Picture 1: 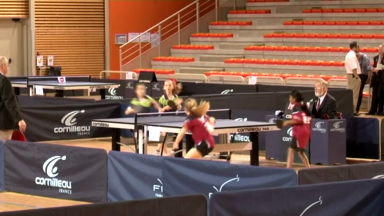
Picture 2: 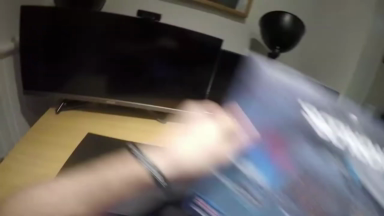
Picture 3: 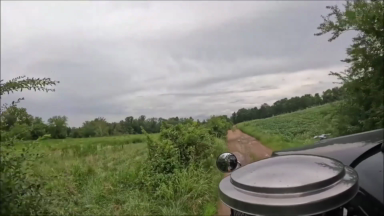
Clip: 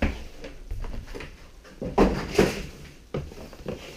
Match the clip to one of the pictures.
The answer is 2